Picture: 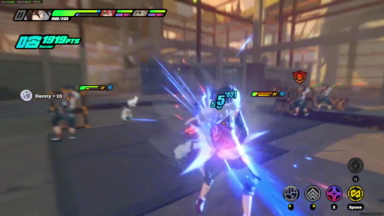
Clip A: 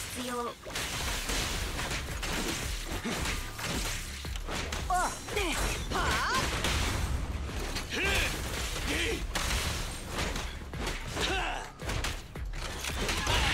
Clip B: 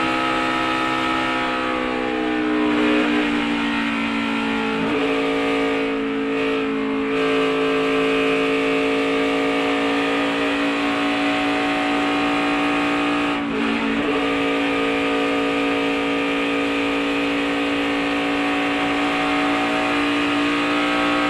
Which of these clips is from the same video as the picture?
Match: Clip A